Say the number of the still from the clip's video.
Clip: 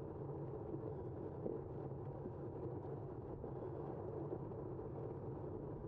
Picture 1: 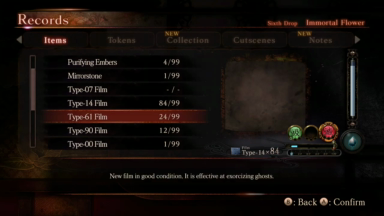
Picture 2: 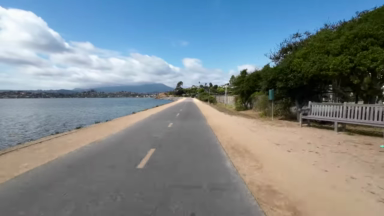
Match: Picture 2